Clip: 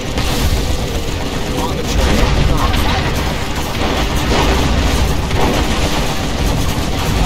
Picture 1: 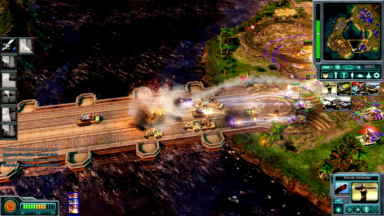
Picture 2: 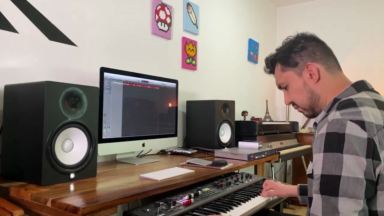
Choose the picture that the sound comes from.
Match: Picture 1